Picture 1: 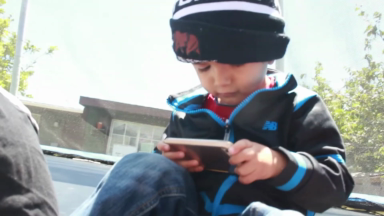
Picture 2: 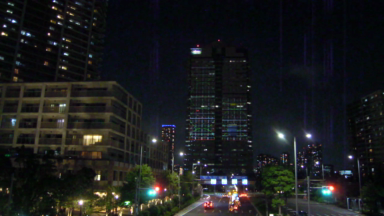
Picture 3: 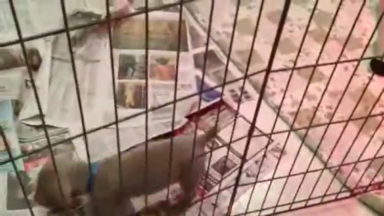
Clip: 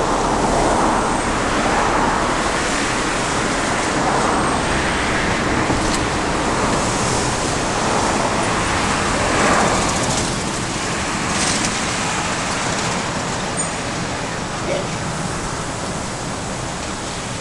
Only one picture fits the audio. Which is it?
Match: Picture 2